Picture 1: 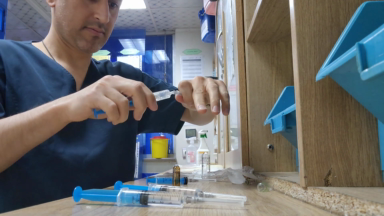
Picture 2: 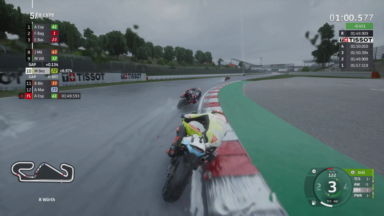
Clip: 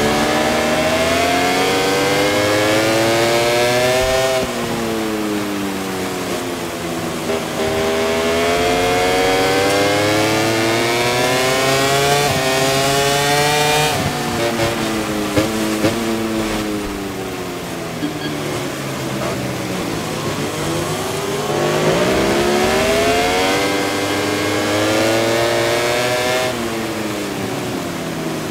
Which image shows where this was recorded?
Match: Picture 2